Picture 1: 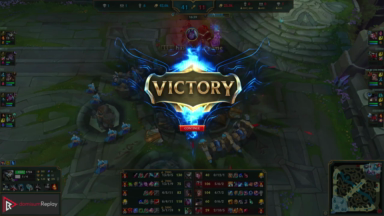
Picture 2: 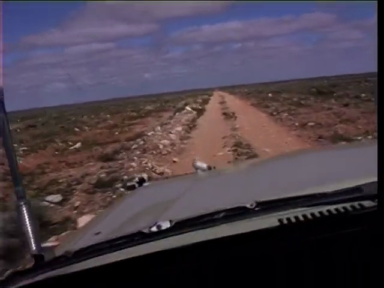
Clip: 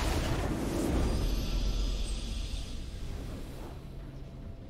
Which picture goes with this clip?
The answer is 1